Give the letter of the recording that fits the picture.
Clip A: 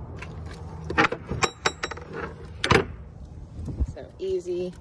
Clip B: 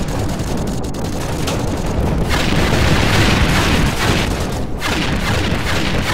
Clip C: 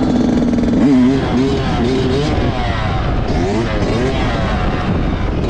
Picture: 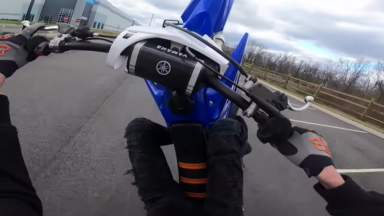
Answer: C